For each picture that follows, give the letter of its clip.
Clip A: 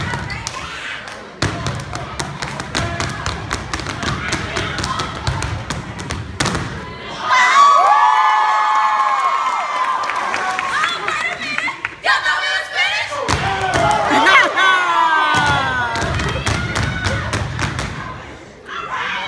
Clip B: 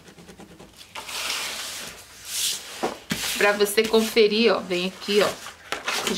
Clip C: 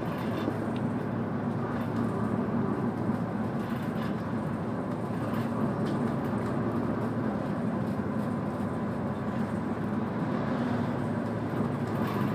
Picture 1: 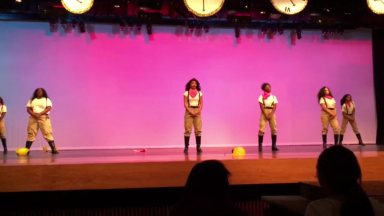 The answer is A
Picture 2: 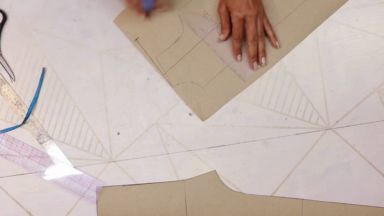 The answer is B